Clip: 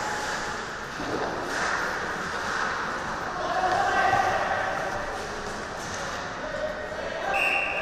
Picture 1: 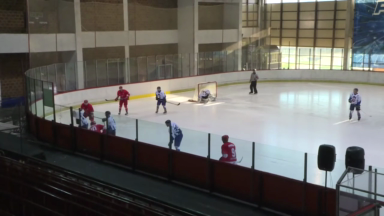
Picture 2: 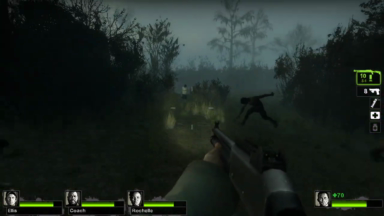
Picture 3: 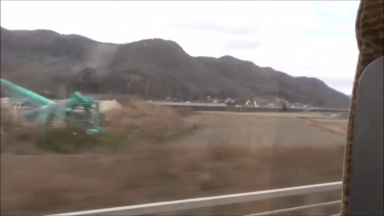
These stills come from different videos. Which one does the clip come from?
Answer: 1